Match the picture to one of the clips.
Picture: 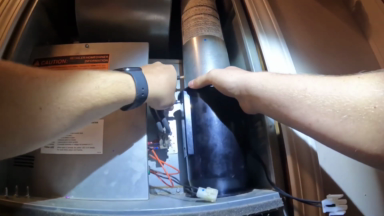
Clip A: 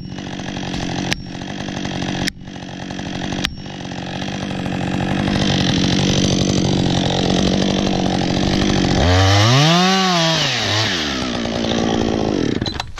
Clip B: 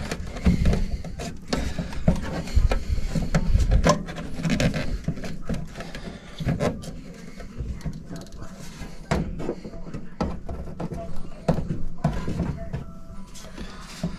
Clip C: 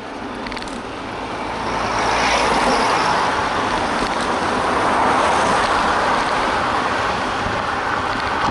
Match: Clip B